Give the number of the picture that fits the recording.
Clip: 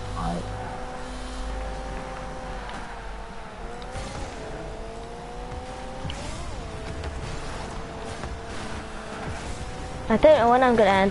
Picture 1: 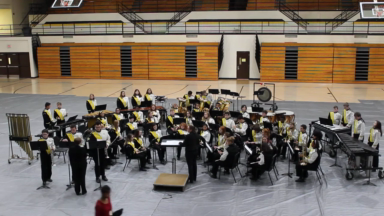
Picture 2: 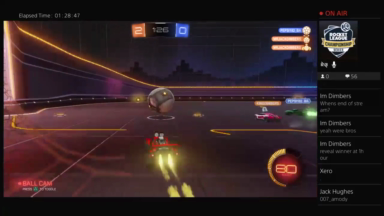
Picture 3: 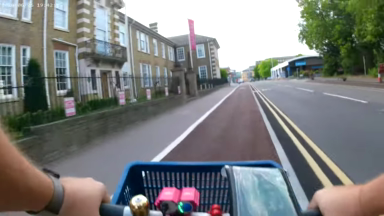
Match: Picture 2